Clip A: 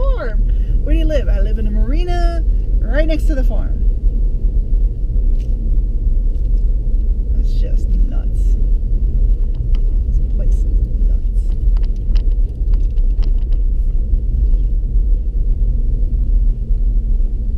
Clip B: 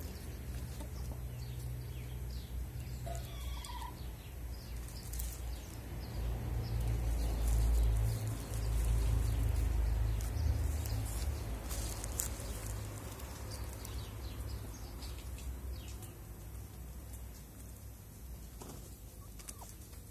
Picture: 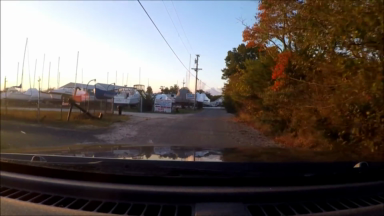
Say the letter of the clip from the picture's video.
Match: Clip A